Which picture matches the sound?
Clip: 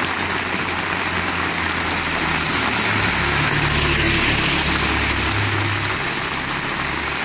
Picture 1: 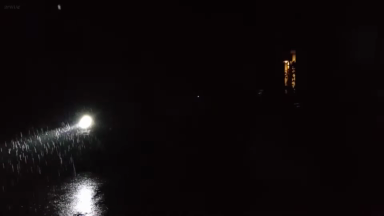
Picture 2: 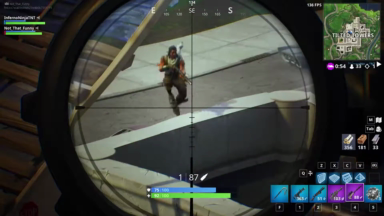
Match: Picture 1